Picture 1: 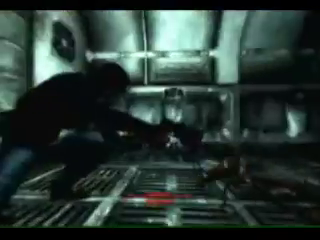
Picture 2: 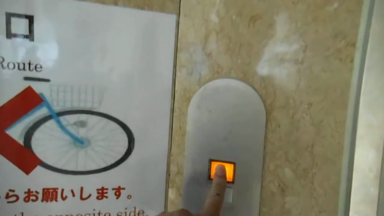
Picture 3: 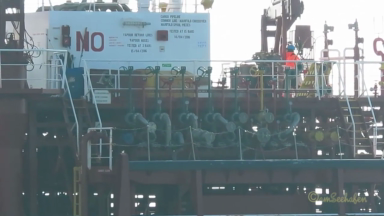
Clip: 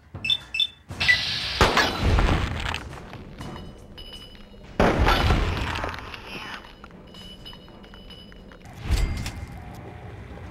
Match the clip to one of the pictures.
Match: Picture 1